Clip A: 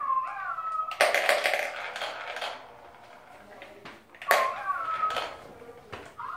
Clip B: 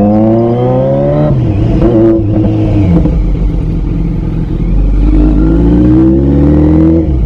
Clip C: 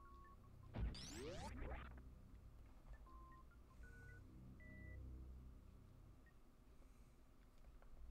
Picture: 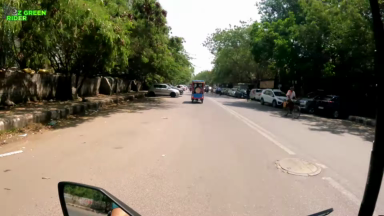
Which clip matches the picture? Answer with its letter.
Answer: B